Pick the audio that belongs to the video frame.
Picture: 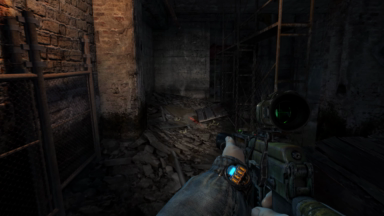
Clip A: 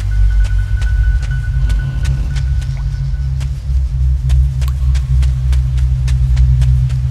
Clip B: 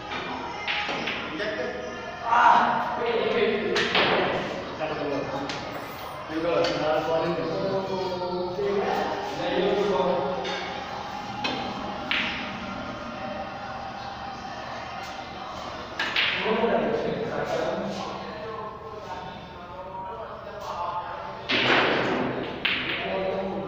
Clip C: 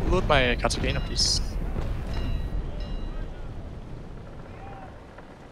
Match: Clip A